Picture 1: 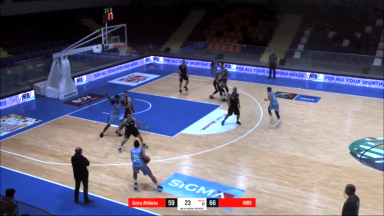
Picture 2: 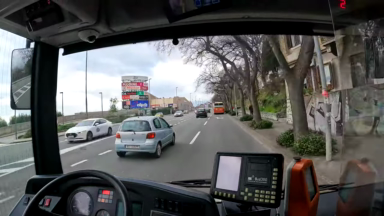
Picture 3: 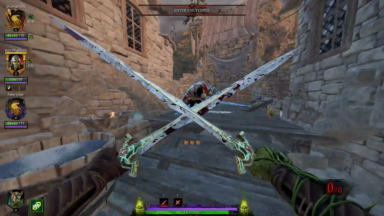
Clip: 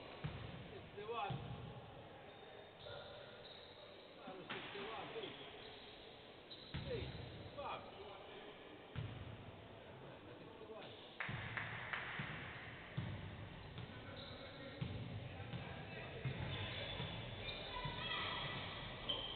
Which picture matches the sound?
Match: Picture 1